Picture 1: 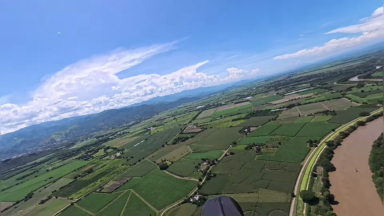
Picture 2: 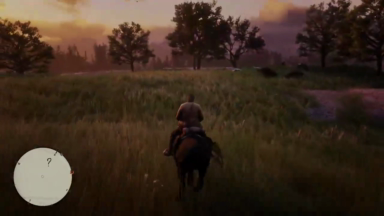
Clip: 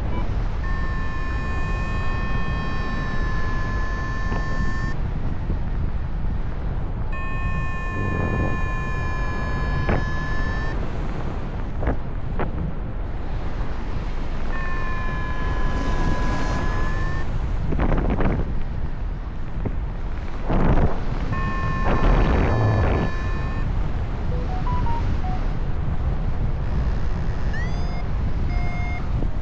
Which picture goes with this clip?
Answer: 1